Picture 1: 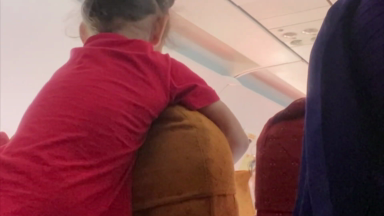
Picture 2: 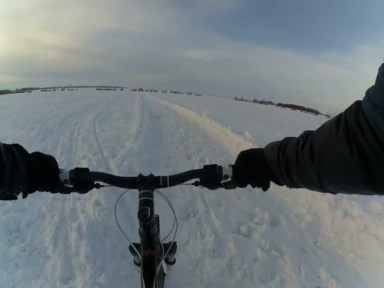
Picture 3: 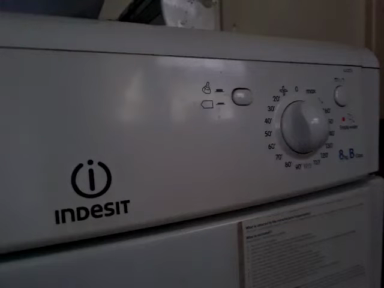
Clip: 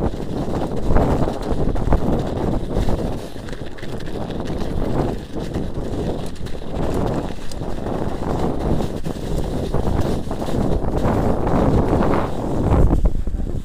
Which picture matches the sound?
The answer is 2